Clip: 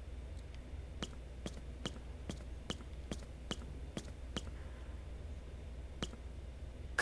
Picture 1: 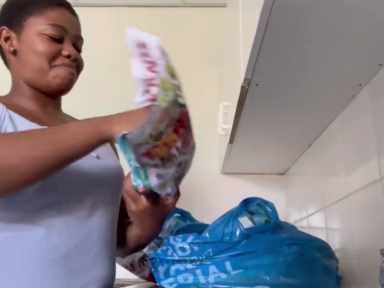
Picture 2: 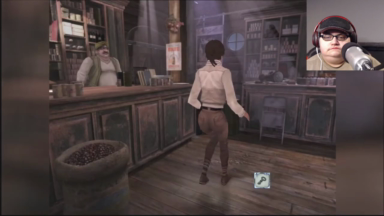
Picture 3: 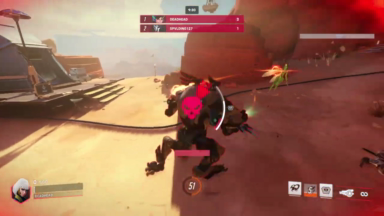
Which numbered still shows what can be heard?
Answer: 2